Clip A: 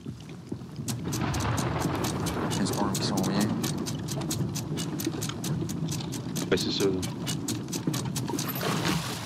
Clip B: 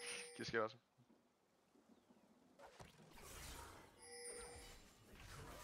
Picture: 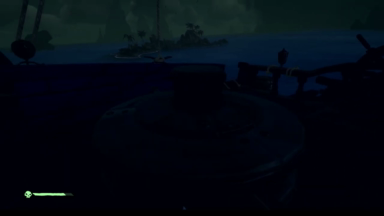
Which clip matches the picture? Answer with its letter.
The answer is A